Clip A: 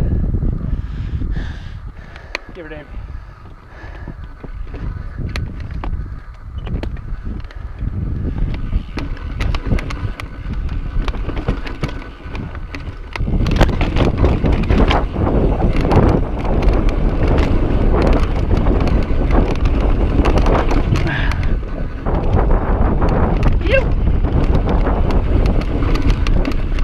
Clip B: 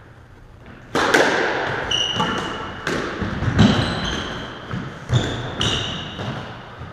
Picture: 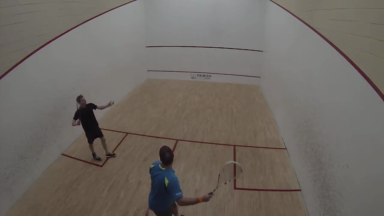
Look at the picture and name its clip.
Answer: B